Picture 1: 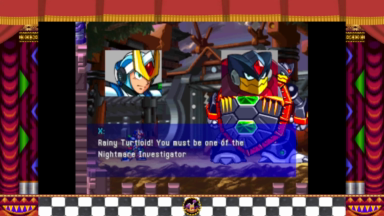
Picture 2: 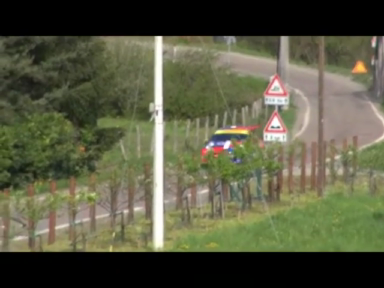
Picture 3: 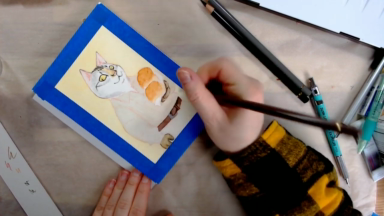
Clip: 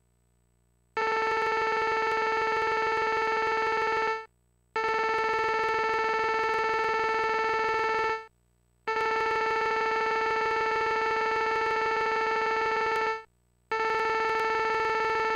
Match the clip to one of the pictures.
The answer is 1